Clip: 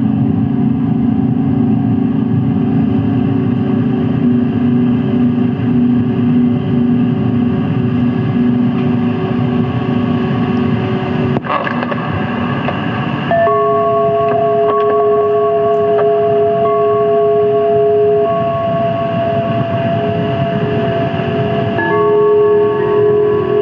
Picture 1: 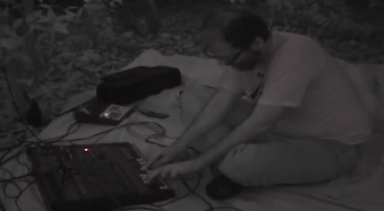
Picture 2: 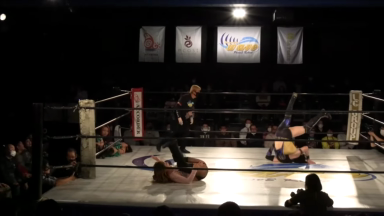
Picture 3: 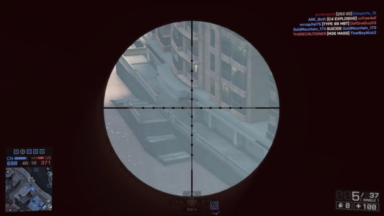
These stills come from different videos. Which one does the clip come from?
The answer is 1